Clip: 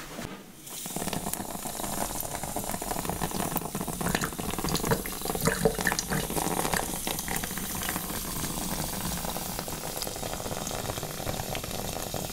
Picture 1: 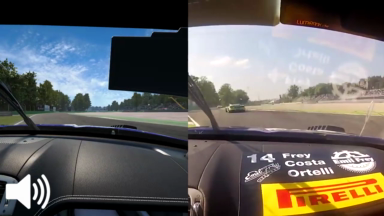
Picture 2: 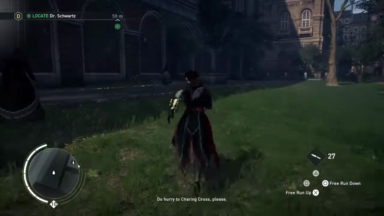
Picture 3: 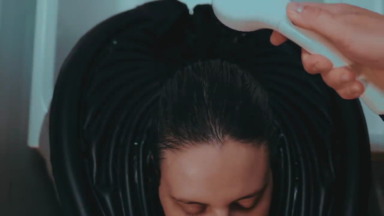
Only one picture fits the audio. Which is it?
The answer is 3